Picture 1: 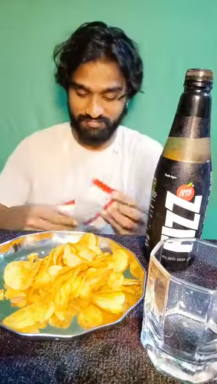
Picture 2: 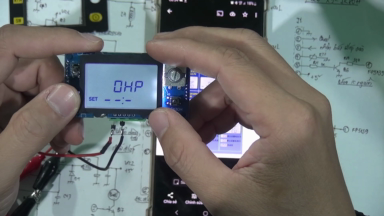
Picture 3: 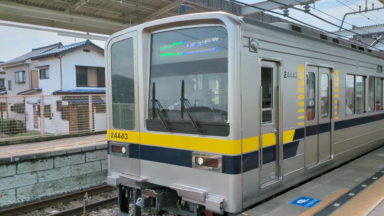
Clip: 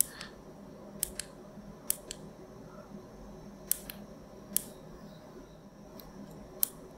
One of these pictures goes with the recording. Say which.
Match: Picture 2